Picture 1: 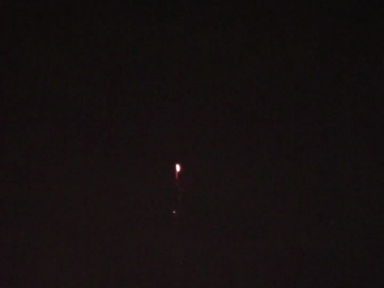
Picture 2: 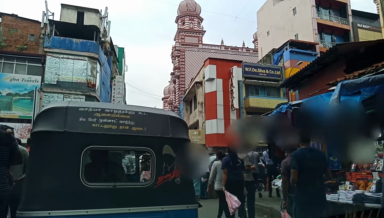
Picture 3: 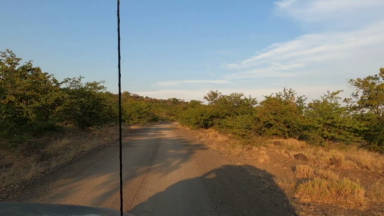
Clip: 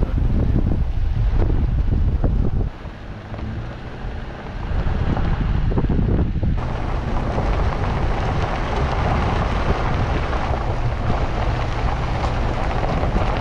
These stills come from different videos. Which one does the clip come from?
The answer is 3